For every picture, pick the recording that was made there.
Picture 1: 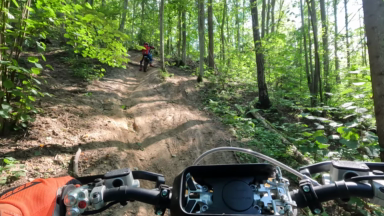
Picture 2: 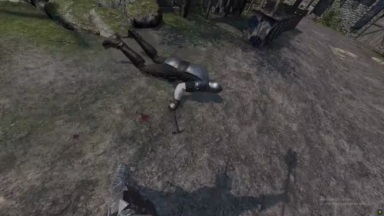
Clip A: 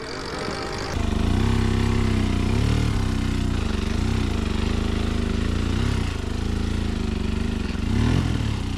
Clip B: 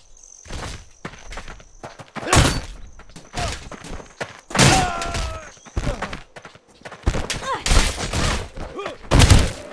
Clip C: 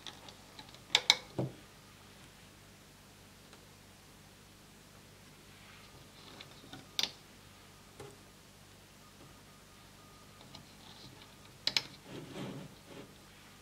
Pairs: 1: A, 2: B